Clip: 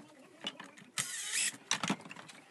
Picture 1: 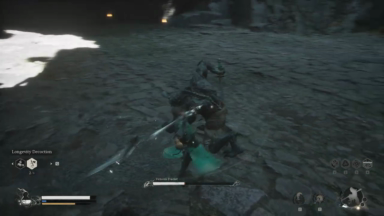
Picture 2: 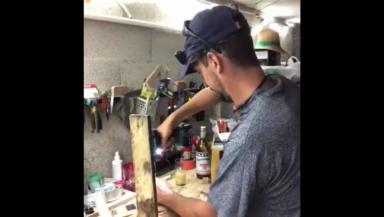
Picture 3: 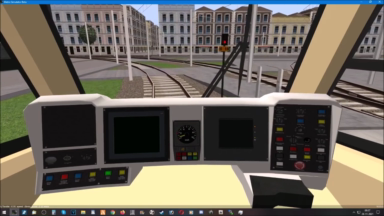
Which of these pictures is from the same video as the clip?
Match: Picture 2